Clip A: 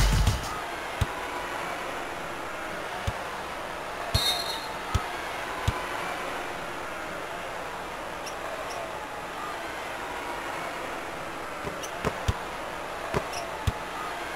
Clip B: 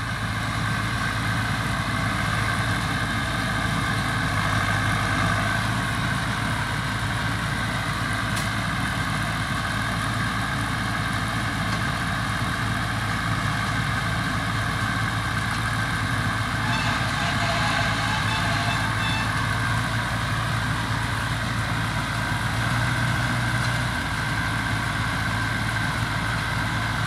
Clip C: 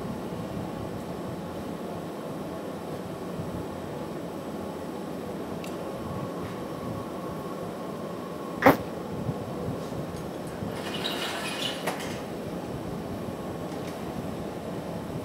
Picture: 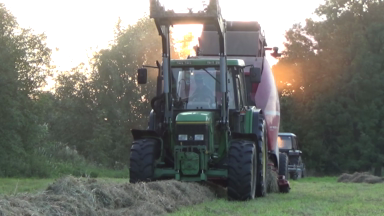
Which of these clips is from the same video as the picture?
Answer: B